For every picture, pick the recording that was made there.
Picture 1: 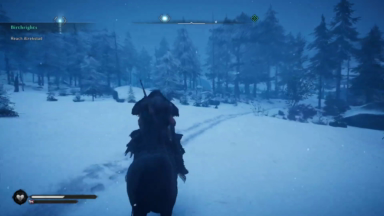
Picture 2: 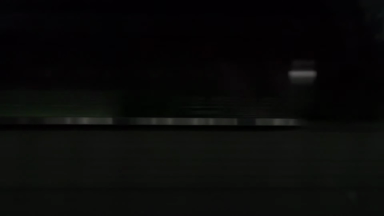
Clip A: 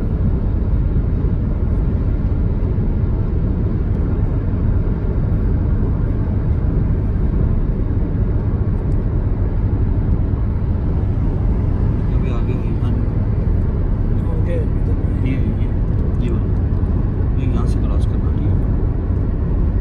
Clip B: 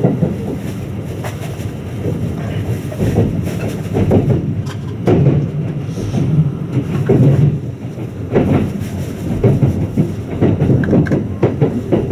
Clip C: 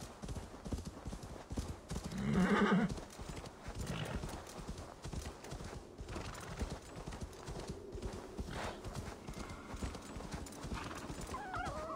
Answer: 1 C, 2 B